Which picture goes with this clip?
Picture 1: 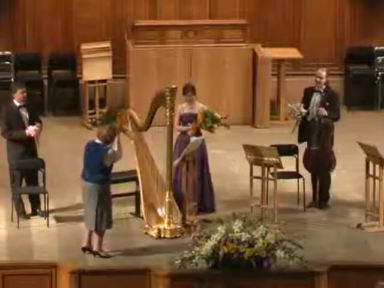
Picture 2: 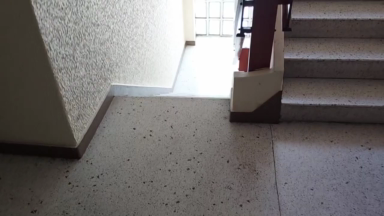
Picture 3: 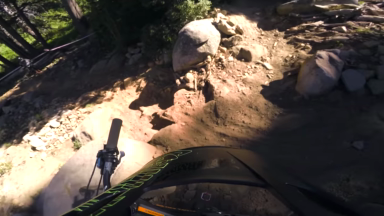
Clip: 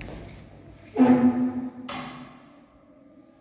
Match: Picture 2